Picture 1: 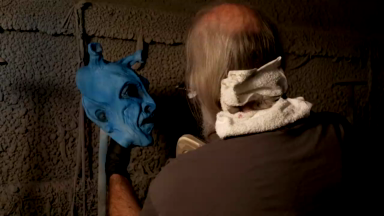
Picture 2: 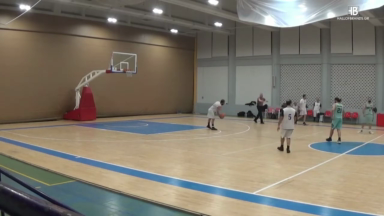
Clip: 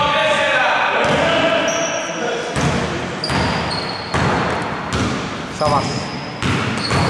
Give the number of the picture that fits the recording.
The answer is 2